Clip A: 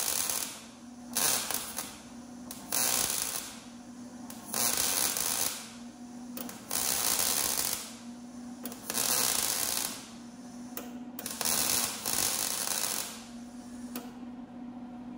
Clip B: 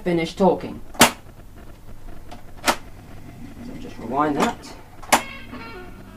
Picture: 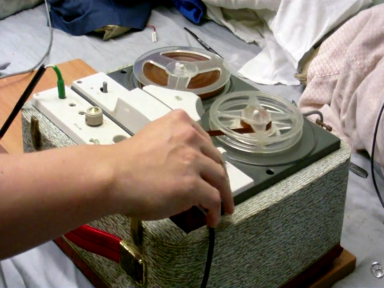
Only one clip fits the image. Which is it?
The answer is B